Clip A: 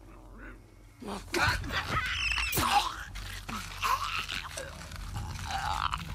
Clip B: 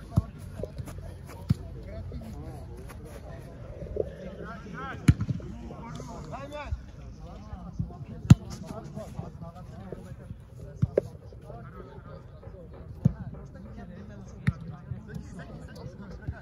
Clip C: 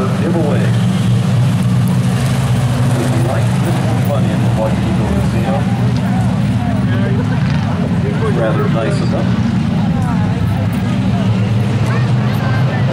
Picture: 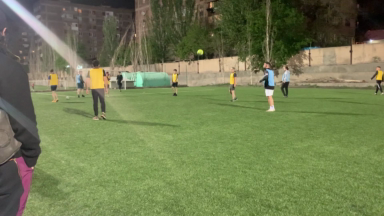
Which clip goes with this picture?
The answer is B